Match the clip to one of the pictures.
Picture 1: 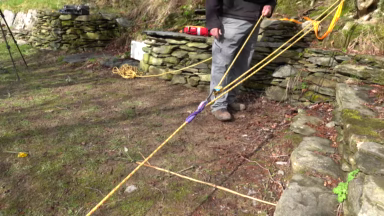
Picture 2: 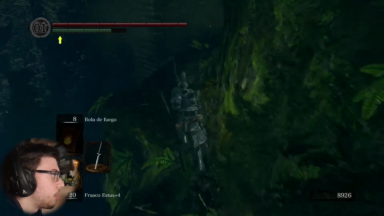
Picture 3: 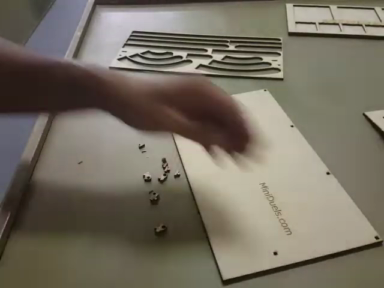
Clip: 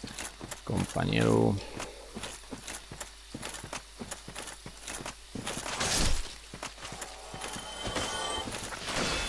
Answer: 2